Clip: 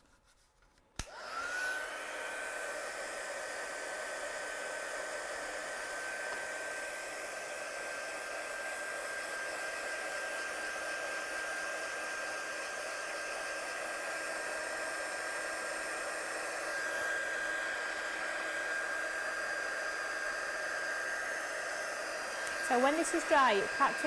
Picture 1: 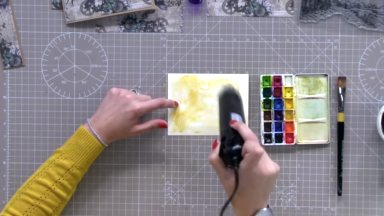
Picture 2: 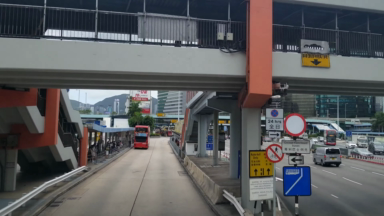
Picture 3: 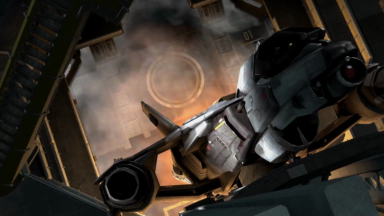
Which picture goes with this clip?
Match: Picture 1